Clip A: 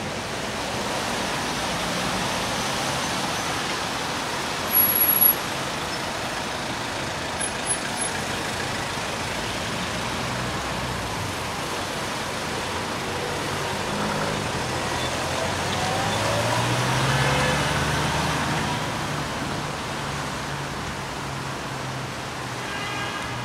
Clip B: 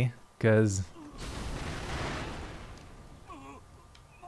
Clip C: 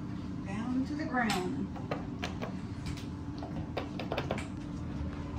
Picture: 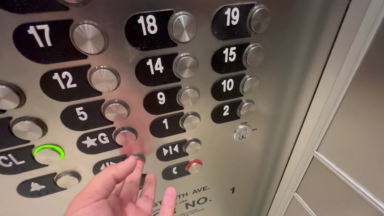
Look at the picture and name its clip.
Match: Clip C